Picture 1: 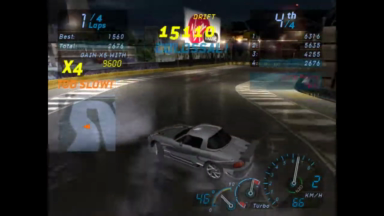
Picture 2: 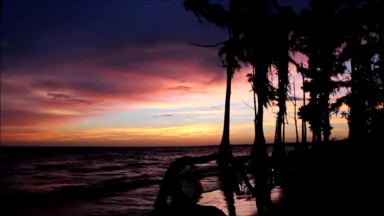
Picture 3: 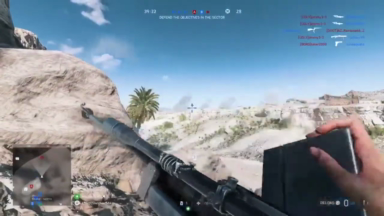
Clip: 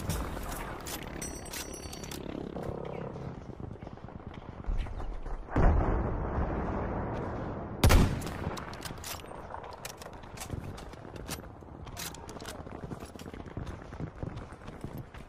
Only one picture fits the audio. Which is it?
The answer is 3